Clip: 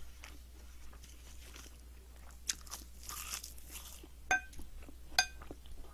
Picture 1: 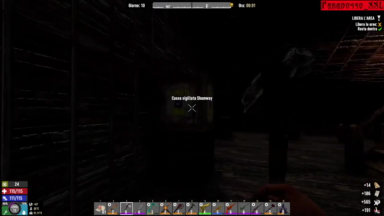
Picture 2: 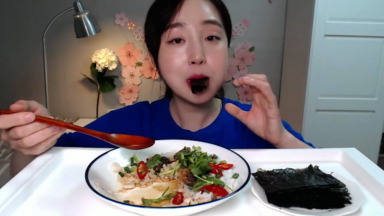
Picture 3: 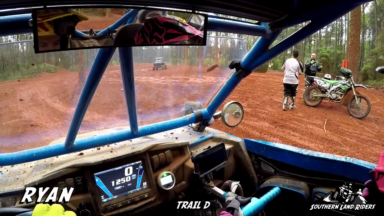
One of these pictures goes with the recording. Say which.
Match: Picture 2